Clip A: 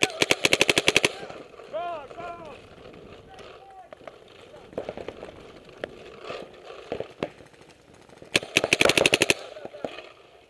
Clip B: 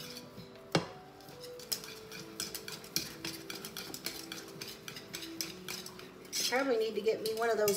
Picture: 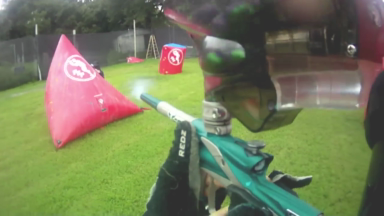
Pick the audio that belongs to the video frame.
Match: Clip A